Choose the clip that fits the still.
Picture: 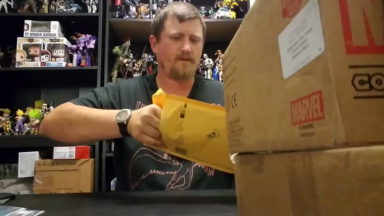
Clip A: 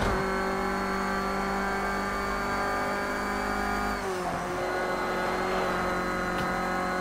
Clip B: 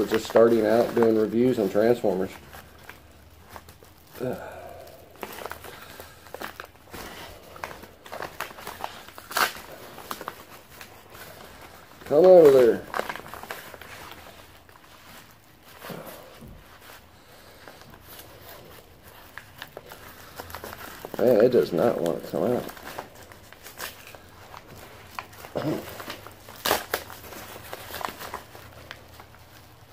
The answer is B